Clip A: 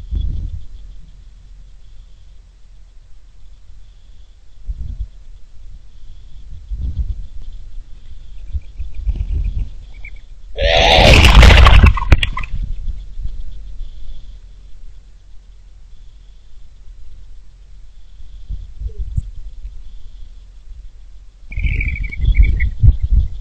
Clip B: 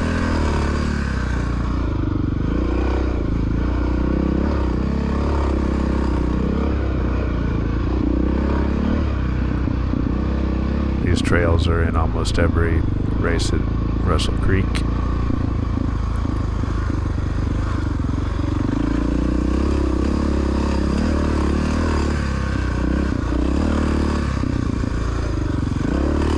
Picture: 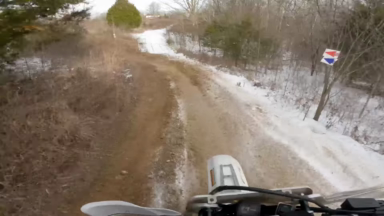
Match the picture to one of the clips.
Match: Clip B